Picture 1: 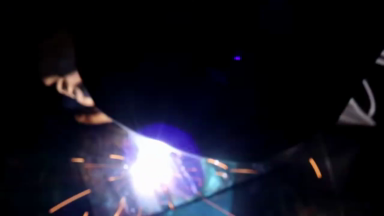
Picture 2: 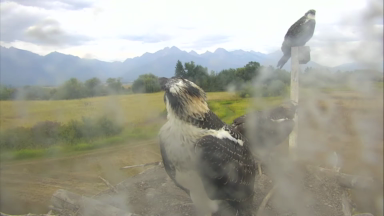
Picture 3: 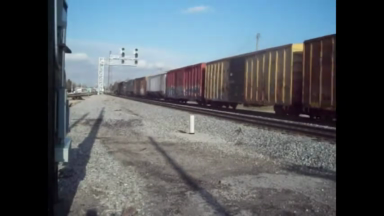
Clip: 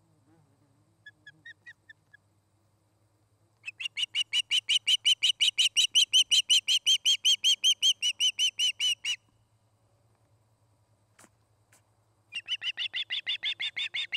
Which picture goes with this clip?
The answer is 2